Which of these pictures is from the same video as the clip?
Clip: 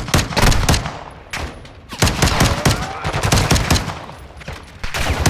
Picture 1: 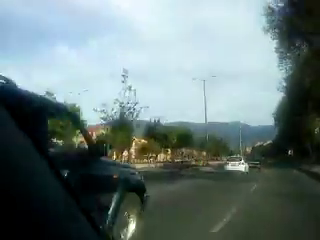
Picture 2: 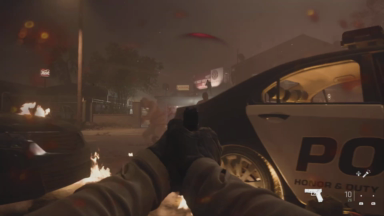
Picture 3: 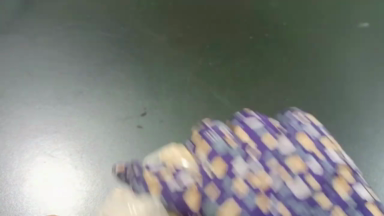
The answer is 2